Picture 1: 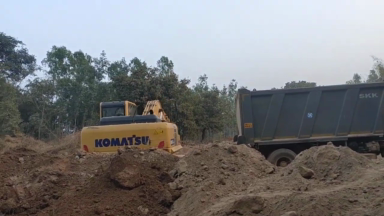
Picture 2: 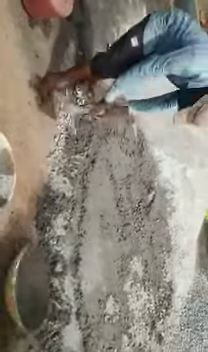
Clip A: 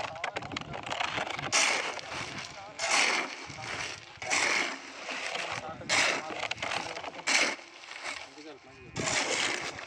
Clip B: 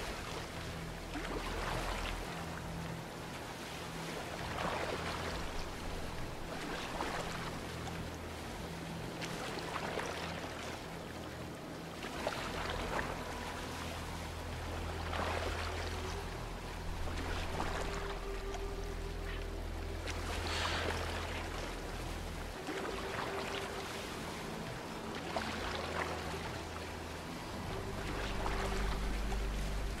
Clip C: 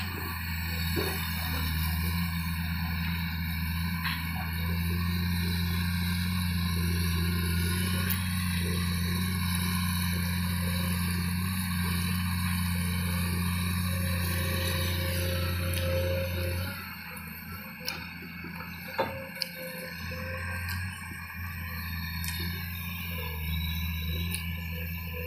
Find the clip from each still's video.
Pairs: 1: C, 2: A